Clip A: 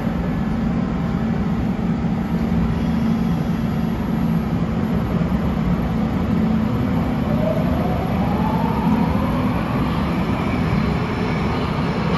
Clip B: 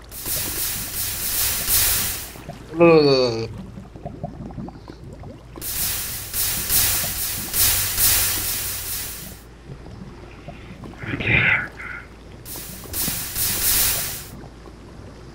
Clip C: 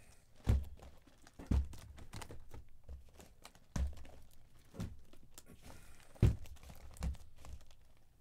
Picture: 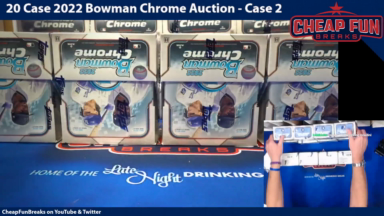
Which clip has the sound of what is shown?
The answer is C